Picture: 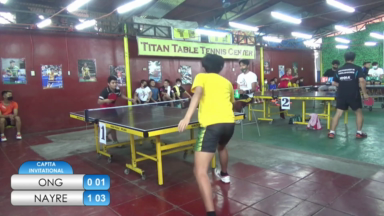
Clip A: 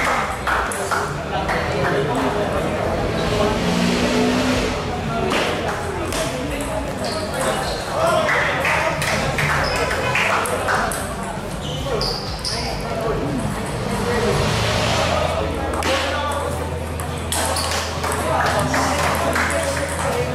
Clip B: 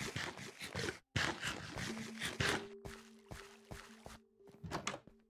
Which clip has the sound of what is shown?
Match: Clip A